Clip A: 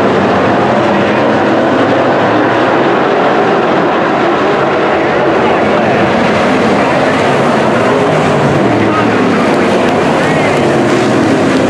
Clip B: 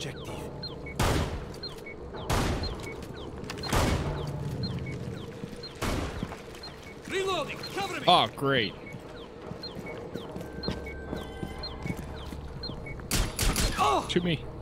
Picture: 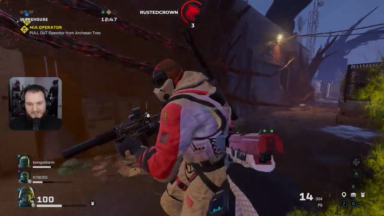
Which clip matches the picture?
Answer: B